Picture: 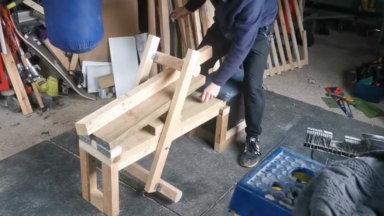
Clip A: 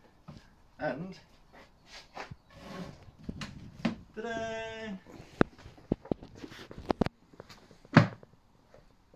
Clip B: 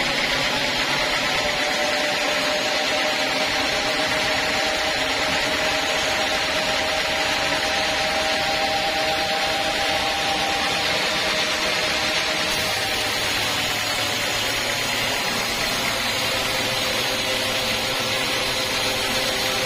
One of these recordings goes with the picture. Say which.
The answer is A